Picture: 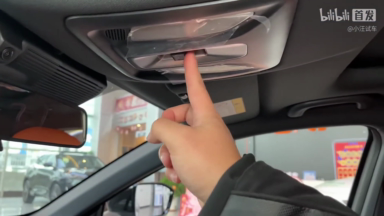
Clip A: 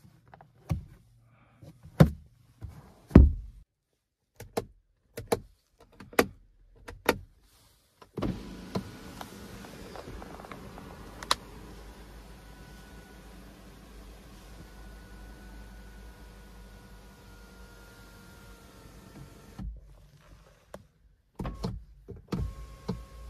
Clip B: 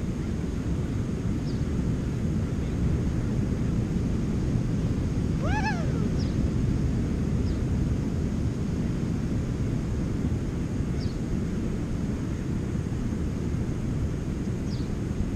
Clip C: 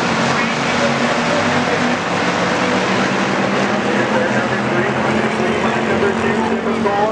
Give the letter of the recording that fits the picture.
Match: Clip A